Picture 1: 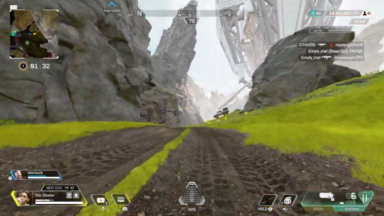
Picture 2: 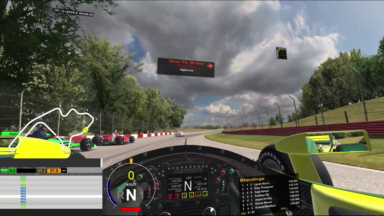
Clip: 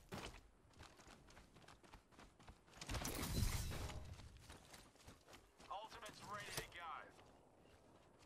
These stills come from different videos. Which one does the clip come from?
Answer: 1